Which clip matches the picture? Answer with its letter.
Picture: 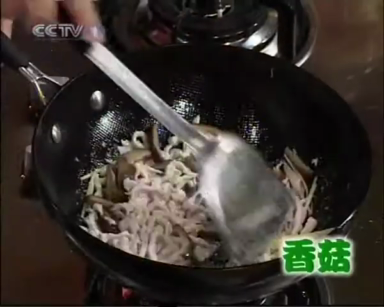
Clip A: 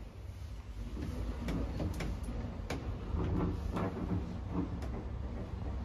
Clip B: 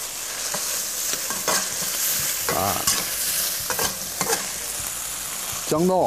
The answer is B